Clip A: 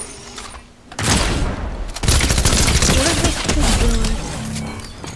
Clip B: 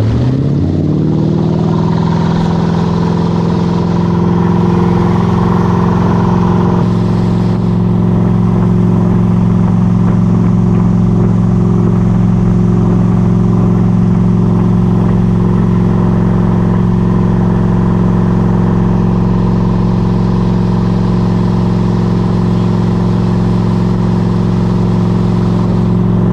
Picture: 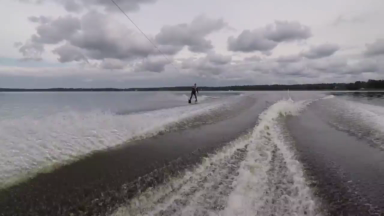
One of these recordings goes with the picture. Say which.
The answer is B